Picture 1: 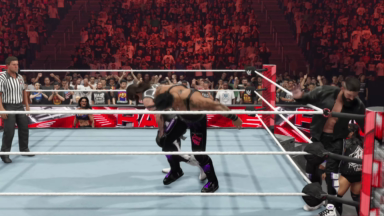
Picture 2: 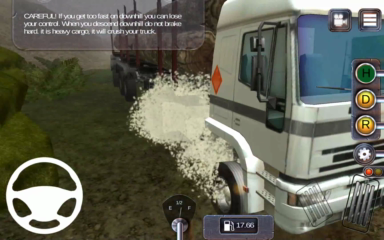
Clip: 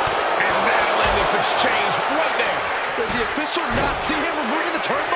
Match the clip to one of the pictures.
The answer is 1